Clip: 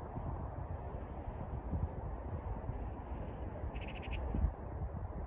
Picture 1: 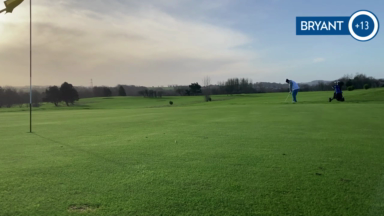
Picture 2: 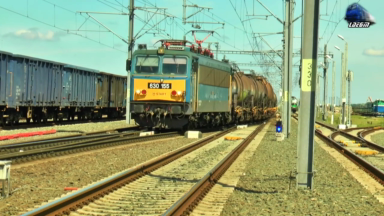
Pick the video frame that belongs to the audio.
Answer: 1